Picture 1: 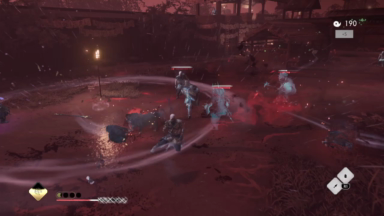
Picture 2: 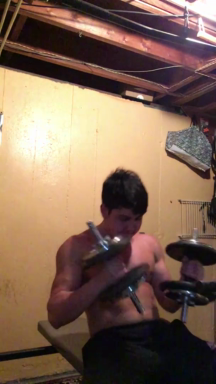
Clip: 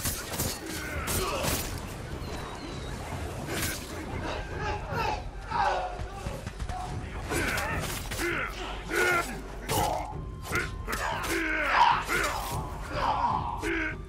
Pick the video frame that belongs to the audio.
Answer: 1